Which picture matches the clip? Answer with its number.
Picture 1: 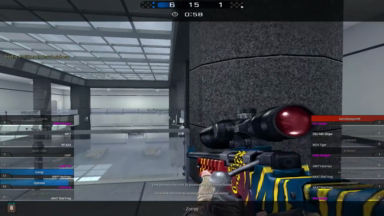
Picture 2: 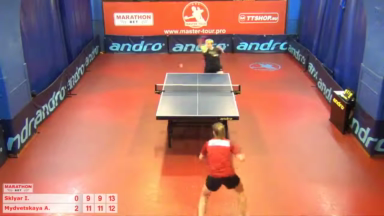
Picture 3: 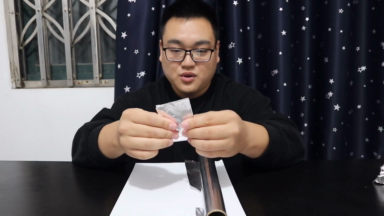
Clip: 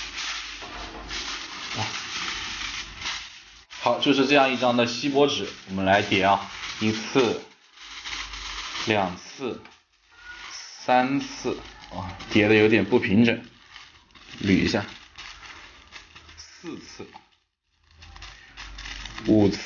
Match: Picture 3